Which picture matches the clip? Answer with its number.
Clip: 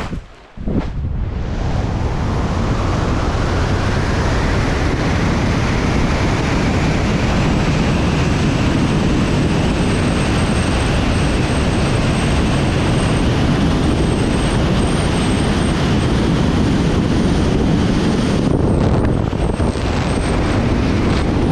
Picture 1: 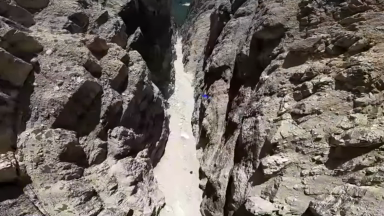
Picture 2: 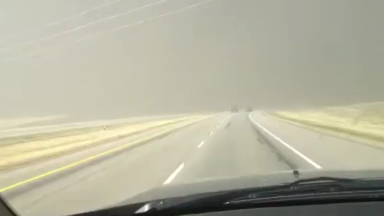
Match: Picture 1